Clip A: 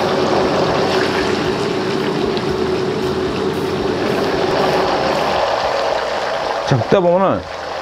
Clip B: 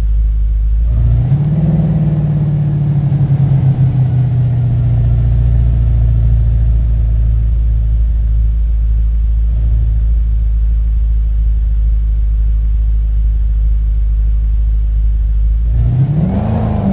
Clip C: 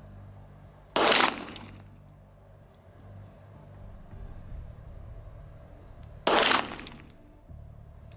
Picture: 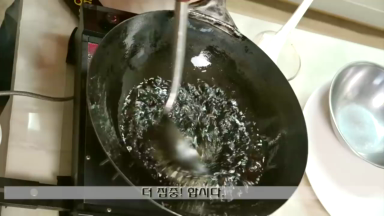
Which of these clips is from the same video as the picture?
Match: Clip A